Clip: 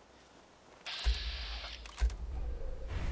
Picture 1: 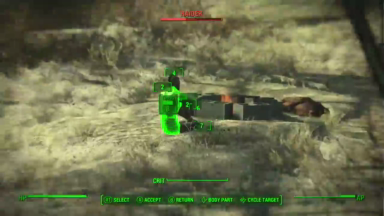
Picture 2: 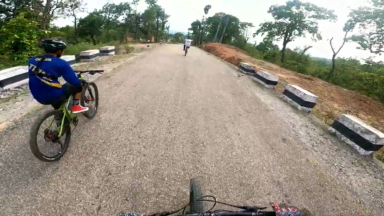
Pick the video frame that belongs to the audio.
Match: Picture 1